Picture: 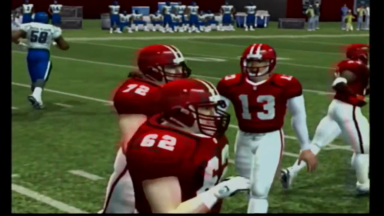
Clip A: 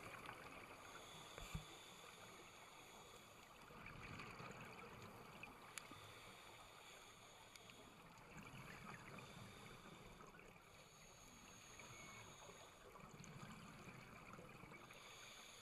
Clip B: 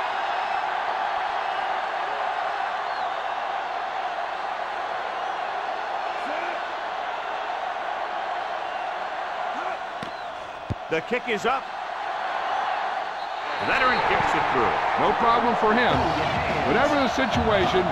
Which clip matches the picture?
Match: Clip B